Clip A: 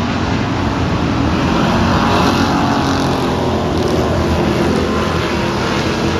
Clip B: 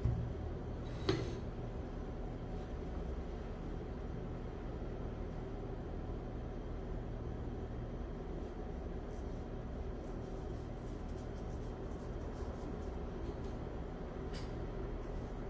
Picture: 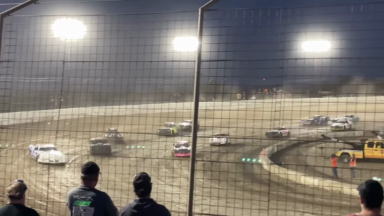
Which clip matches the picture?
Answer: A